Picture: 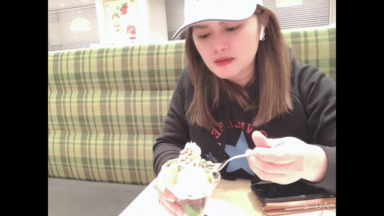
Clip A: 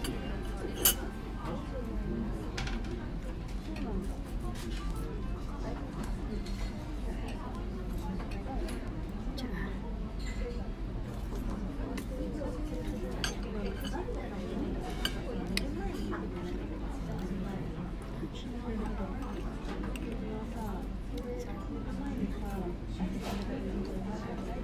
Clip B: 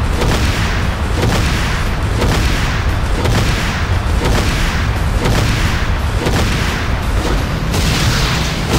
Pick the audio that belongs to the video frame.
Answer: A